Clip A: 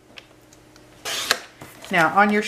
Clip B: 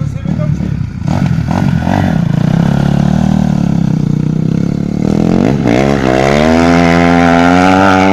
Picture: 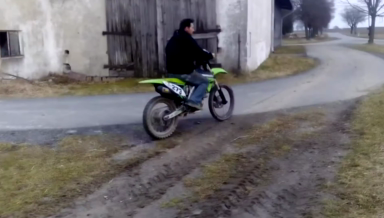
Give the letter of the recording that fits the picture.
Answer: B